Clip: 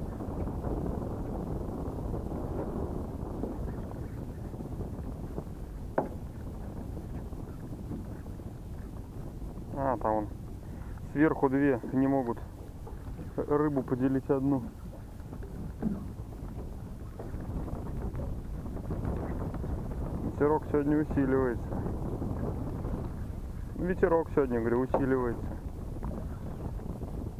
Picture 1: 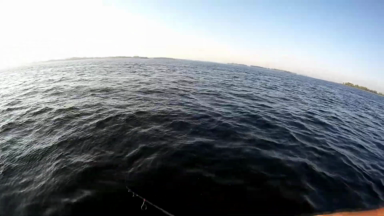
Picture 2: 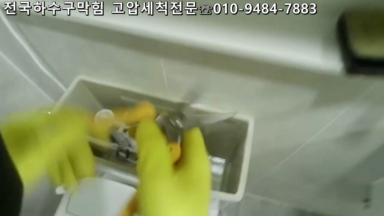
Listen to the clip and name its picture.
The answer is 1